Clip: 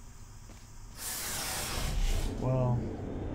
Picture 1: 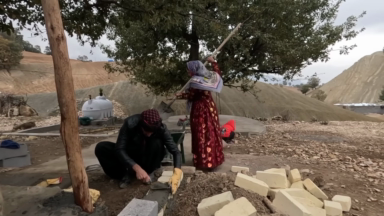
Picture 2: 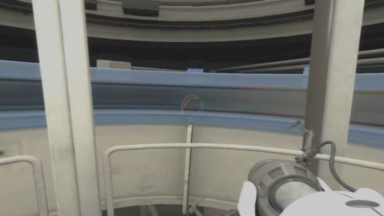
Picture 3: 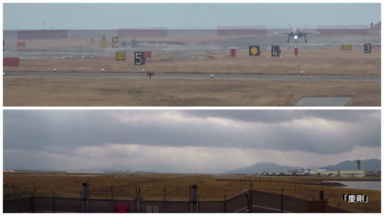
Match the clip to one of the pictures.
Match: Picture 2